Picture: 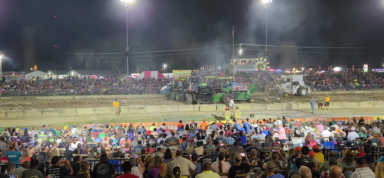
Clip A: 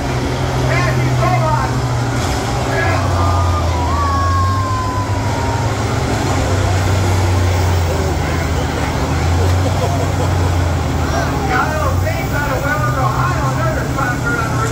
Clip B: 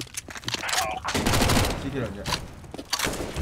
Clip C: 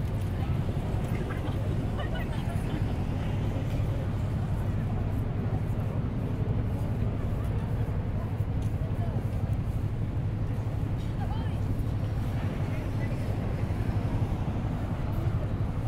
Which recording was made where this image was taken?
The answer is A